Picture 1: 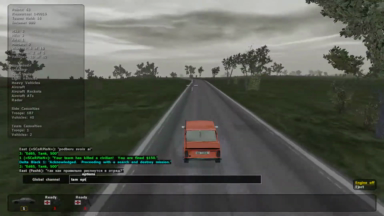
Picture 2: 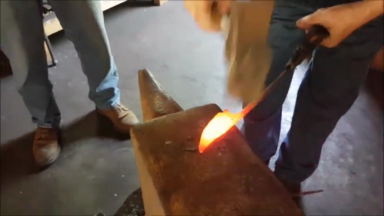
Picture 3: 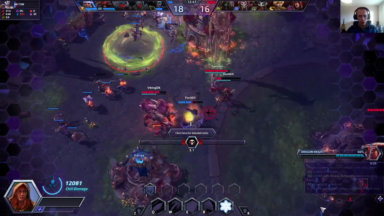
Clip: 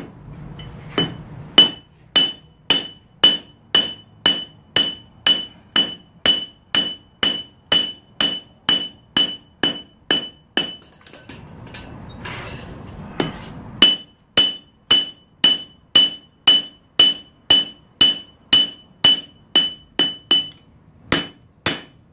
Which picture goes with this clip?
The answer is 2